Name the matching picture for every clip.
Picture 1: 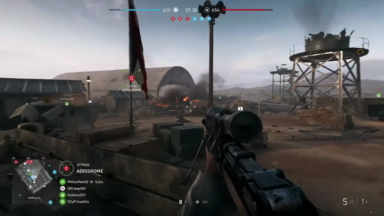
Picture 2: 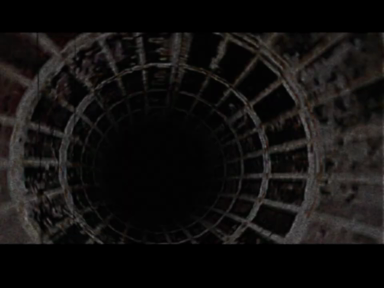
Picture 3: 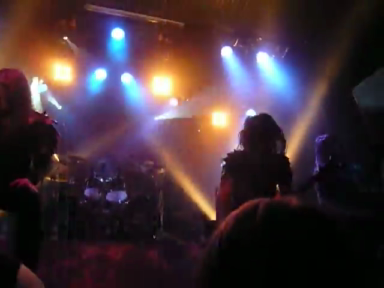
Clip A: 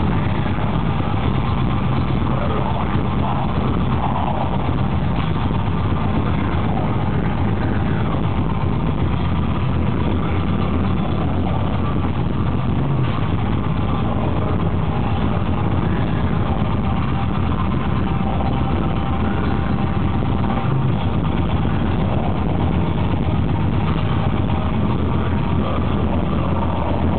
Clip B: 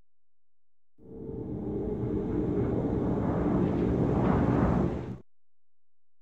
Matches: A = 3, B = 2